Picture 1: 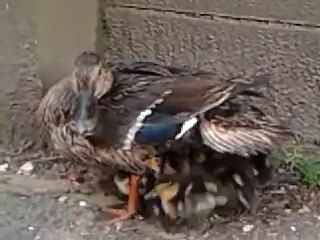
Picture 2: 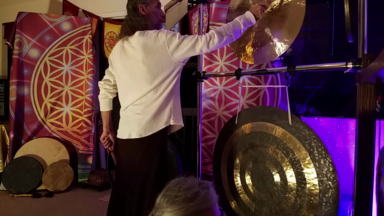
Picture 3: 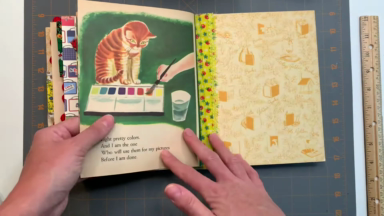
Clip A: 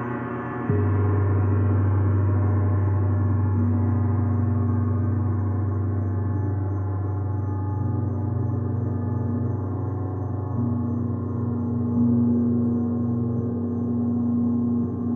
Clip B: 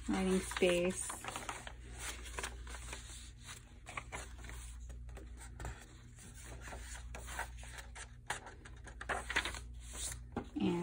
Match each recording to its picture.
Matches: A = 2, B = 3